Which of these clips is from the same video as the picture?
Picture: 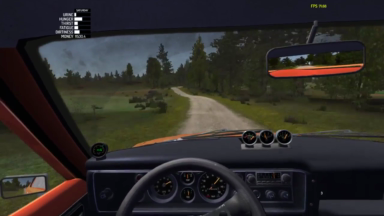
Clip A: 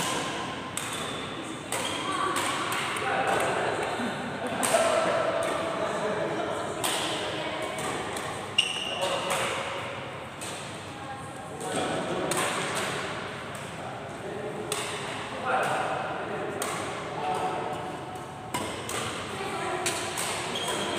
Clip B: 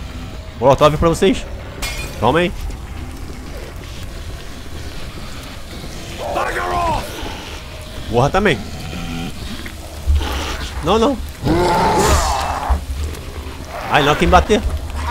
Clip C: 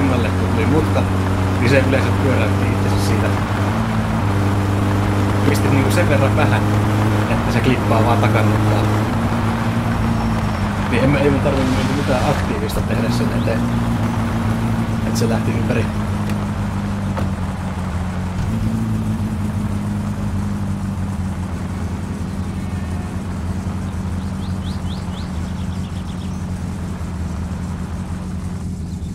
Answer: C